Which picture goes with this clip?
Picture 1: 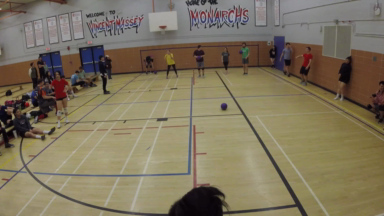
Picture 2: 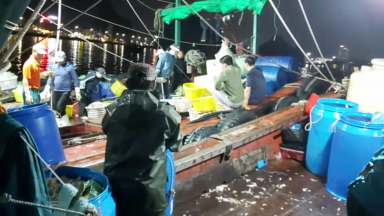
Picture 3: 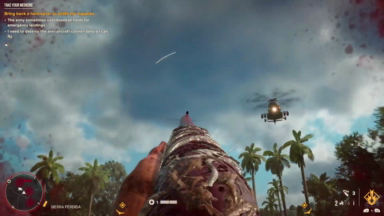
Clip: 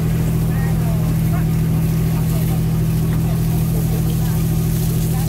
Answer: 2